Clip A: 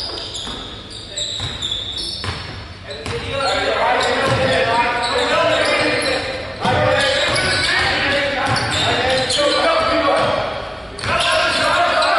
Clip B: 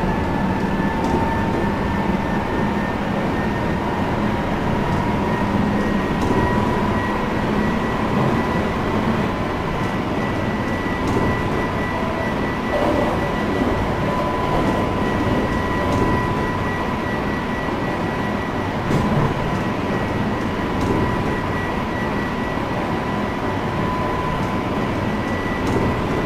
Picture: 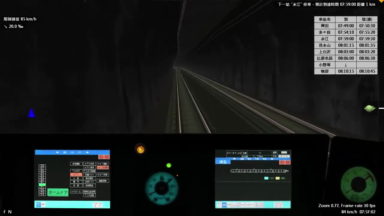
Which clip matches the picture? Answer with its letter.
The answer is B